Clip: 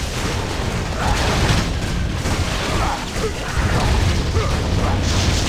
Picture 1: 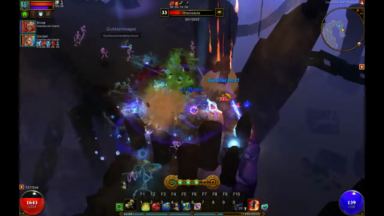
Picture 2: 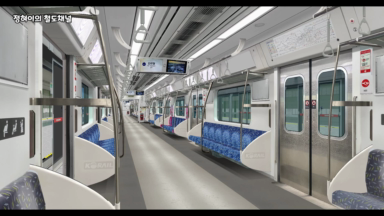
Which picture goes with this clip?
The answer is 1